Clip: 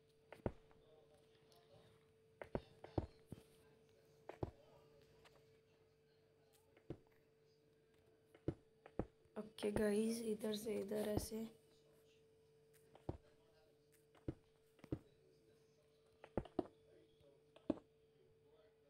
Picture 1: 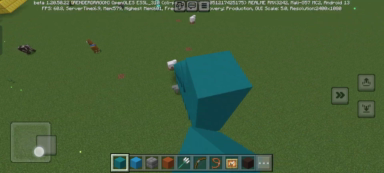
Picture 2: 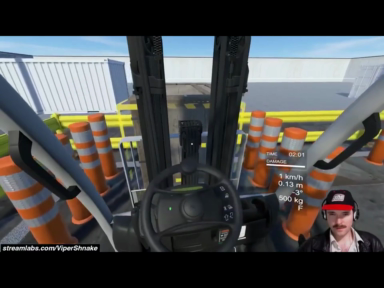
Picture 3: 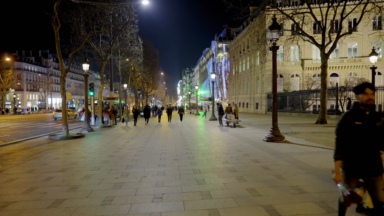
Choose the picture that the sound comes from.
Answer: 1